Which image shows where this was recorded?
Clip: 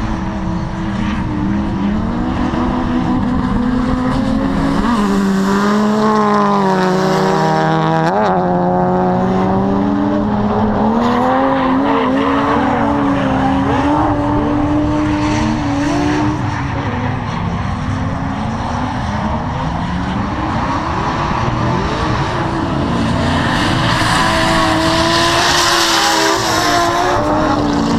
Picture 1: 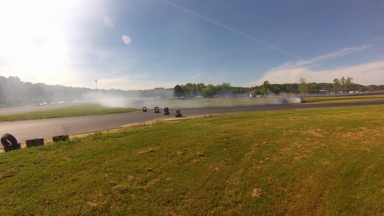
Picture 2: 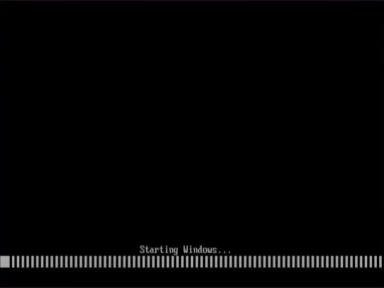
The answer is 1